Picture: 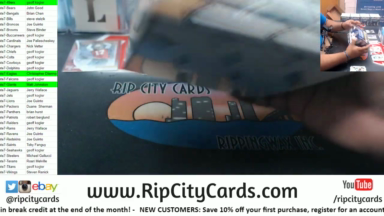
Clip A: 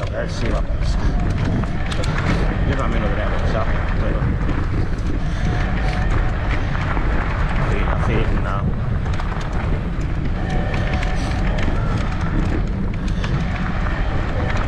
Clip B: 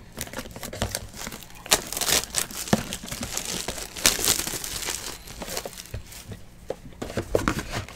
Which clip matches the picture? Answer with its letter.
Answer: B